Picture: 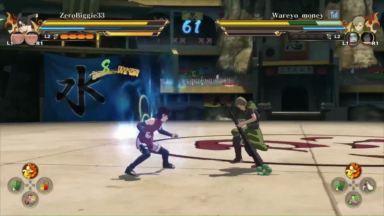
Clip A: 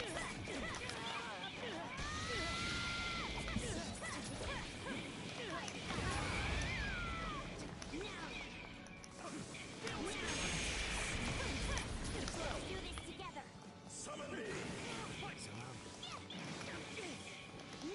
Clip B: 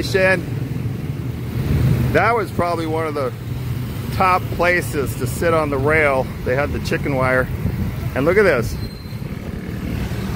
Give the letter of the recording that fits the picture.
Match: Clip A